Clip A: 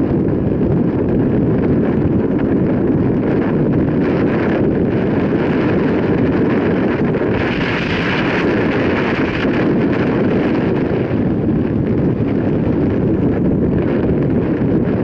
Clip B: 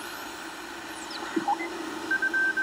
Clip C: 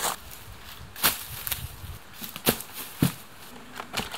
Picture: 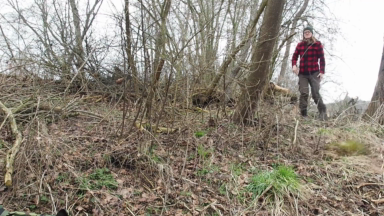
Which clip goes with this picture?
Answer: C